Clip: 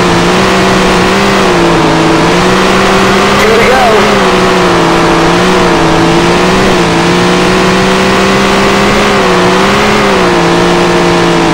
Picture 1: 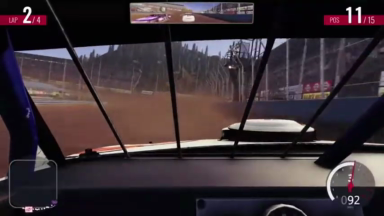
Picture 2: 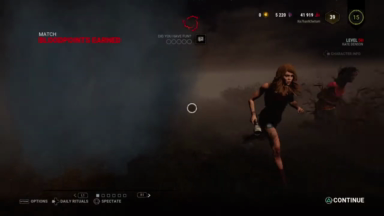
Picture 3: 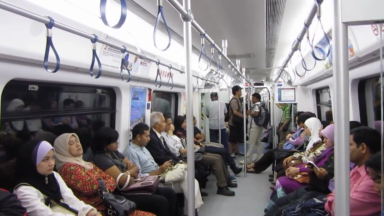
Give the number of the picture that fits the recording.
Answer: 1